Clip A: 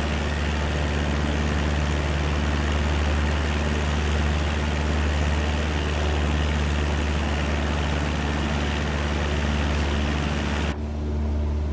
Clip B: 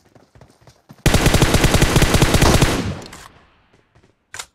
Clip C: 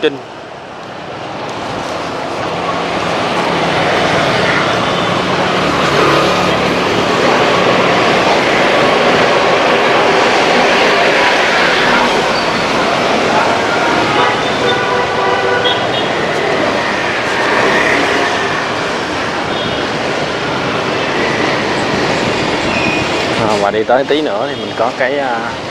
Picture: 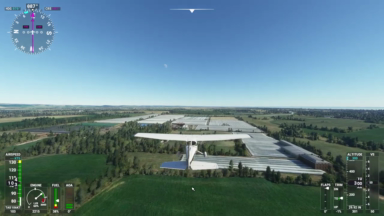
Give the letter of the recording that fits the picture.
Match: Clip A